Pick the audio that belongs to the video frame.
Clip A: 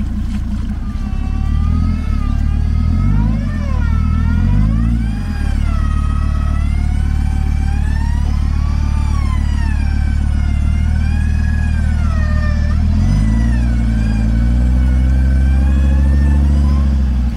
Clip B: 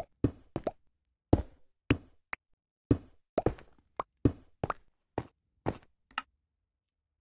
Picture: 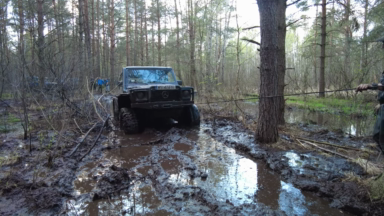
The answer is A